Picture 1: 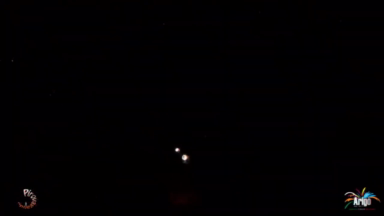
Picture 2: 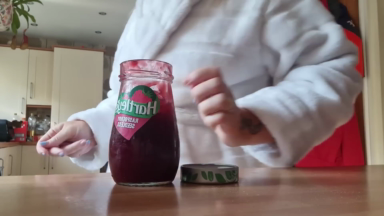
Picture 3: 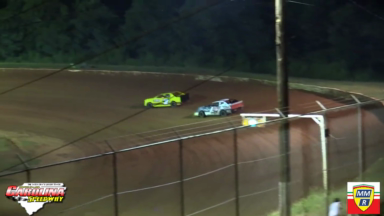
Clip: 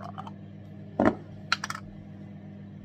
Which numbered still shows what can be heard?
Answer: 2